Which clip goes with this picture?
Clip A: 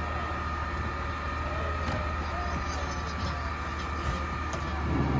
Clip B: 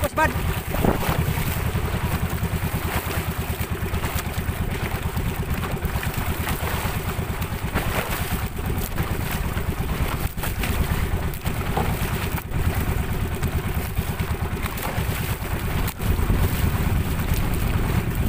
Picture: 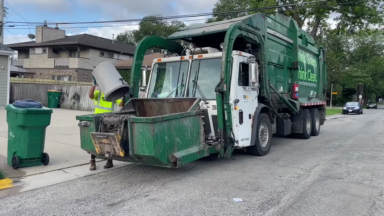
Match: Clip A